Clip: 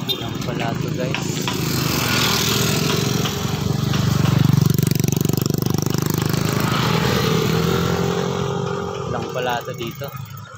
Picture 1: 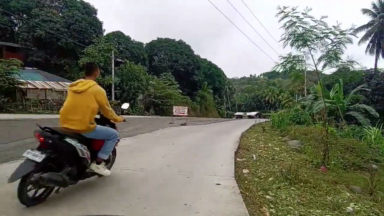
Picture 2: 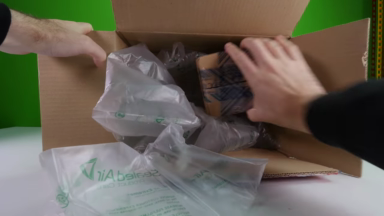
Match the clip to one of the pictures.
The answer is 1